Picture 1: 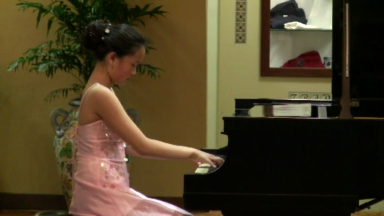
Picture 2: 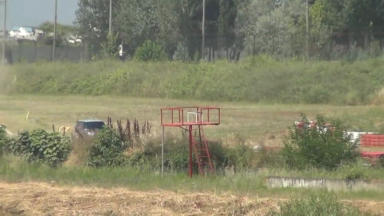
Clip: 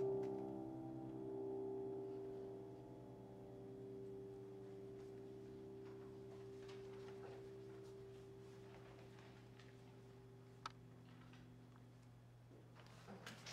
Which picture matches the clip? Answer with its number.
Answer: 1